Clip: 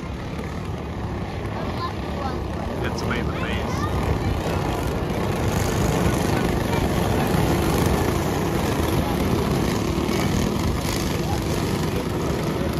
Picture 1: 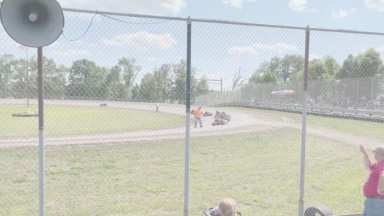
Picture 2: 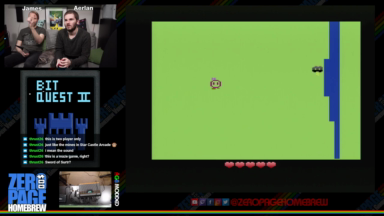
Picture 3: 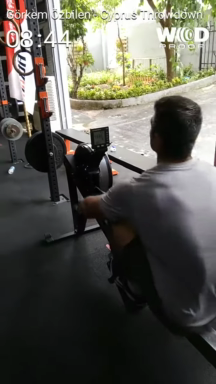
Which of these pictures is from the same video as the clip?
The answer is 1